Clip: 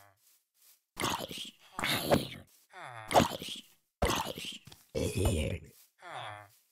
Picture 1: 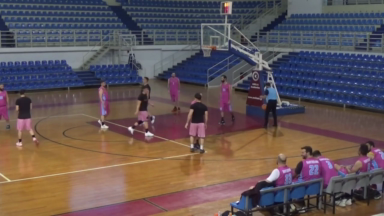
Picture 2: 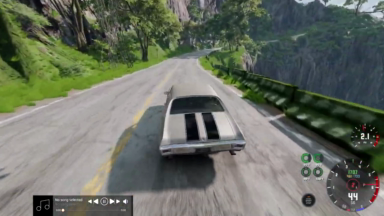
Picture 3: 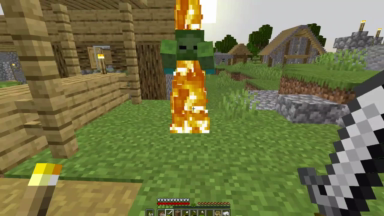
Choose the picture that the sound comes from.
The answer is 3